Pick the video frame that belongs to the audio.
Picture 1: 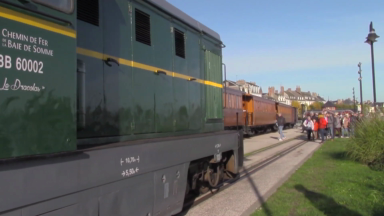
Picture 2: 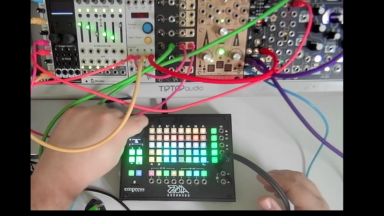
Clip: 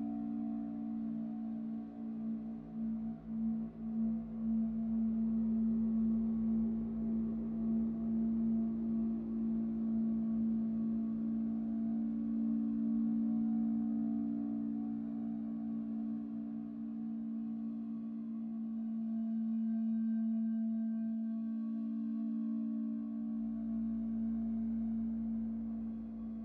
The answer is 2